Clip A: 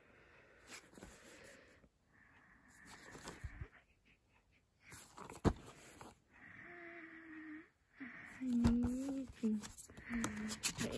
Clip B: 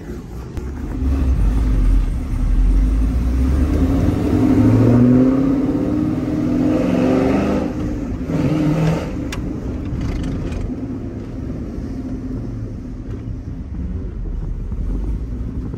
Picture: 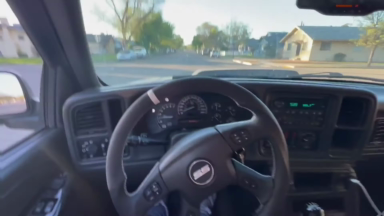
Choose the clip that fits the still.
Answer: B